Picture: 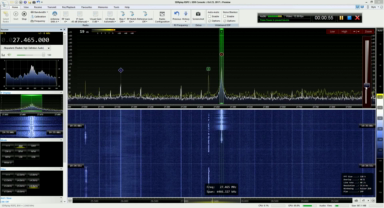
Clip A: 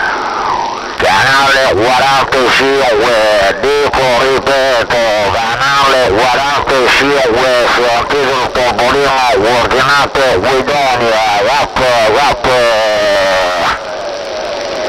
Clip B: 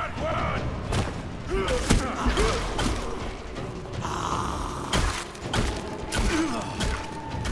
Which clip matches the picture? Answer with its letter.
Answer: A